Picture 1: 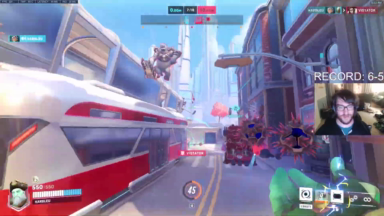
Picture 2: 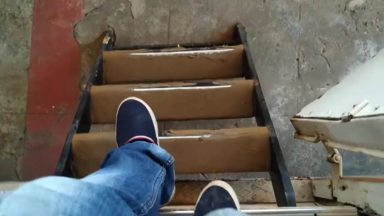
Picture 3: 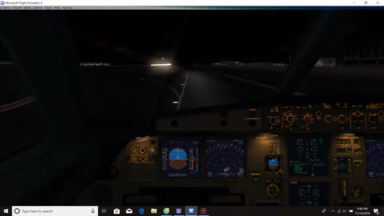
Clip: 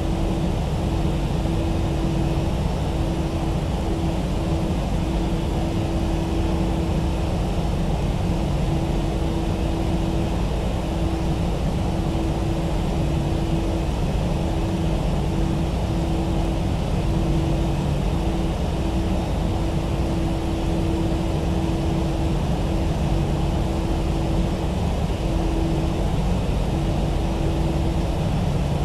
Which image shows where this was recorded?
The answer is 3